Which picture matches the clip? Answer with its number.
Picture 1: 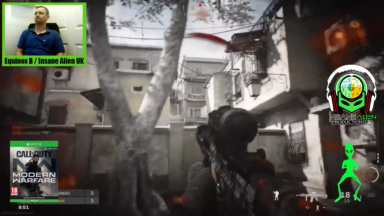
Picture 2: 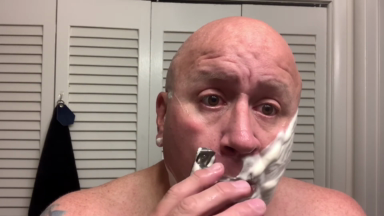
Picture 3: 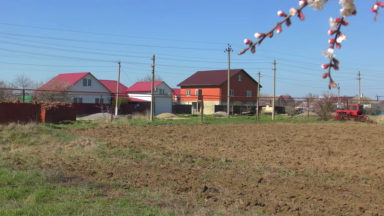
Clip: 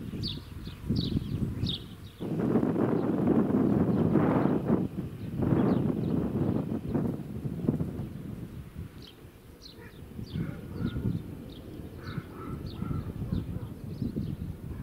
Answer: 3